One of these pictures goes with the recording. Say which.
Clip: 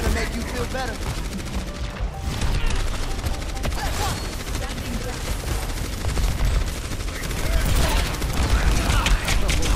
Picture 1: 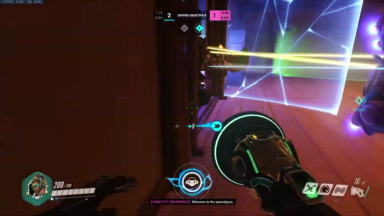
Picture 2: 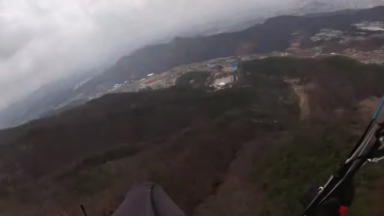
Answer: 1